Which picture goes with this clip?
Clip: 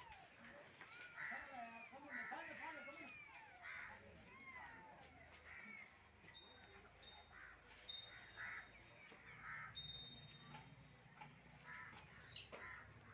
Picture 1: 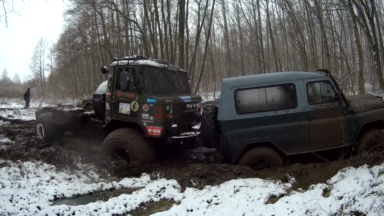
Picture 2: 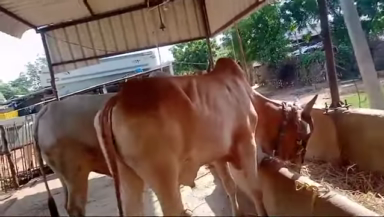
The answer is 2